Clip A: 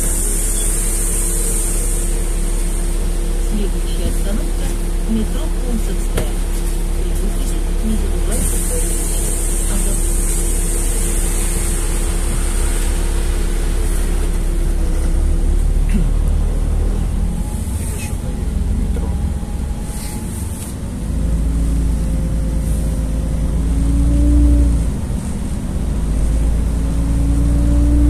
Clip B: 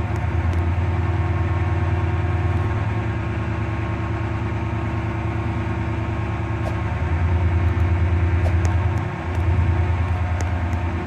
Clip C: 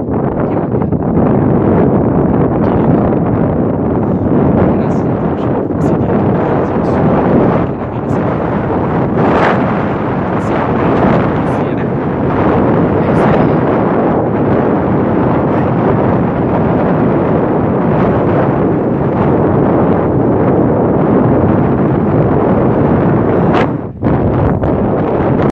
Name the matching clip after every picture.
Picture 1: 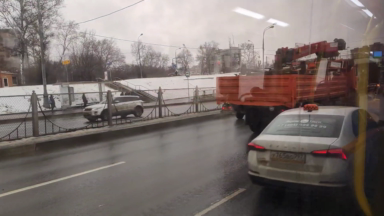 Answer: A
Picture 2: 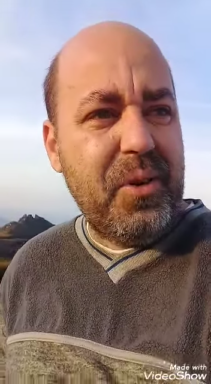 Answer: C